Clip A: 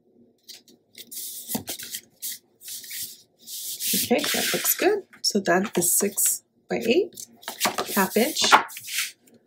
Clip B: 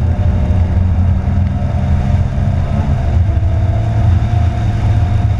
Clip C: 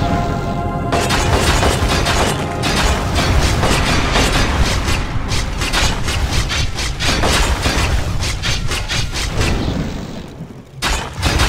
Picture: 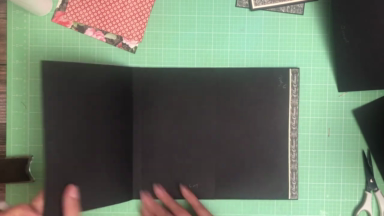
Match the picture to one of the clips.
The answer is A